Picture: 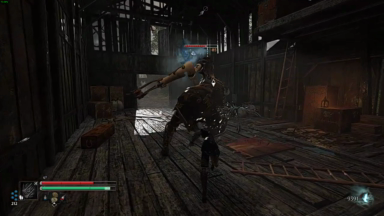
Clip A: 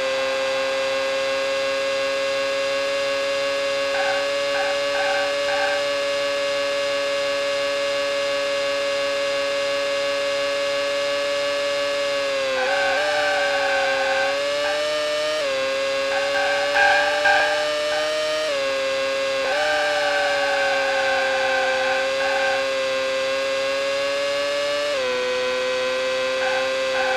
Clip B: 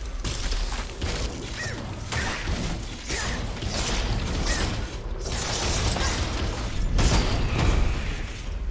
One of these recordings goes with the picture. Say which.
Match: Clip B